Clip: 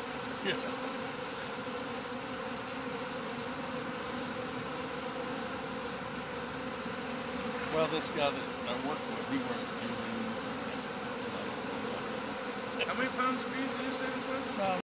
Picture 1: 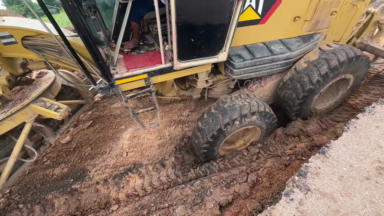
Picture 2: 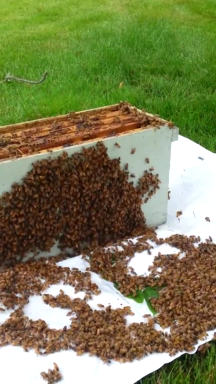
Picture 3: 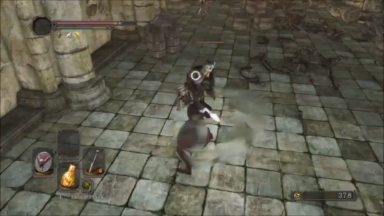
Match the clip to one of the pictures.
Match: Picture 2